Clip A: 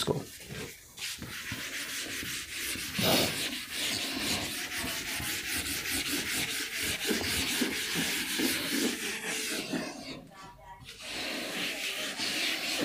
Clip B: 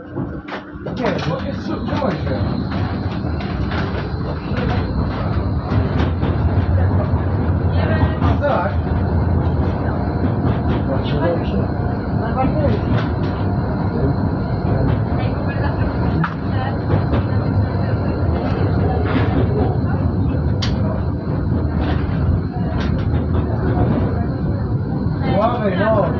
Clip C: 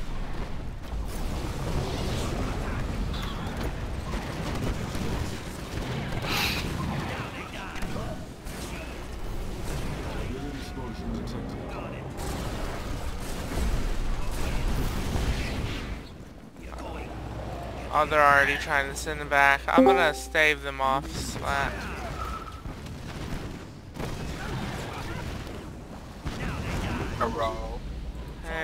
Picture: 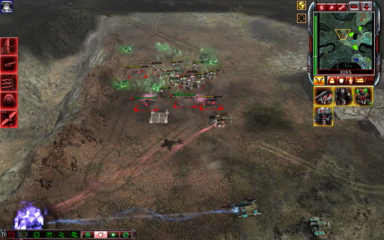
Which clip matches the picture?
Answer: C